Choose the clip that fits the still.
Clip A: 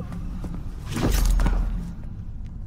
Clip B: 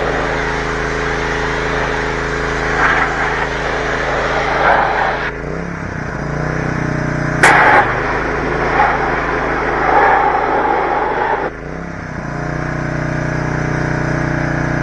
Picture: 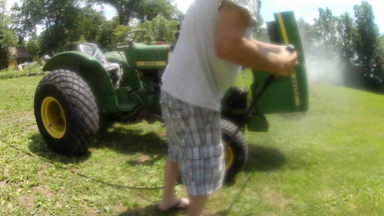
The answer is B